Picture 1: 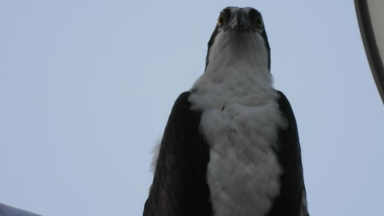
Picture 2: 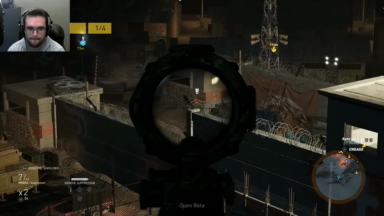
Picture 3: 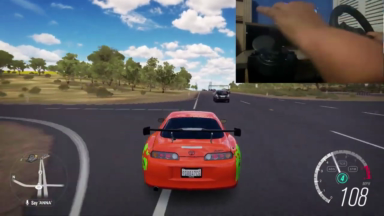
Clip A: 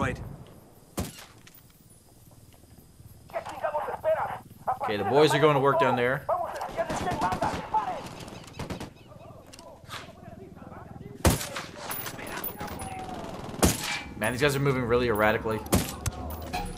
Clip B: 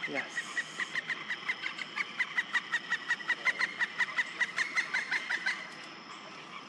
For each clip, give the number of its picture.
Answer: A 2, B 1